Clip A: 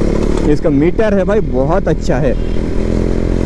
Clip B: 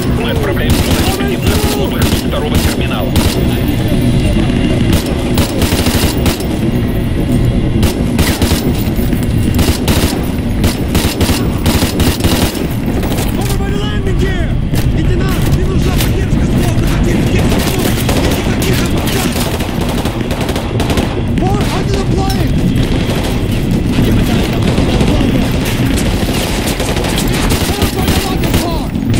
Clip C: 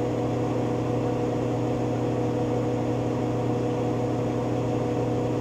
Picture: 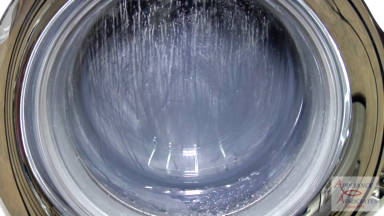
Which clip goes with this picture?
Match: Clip C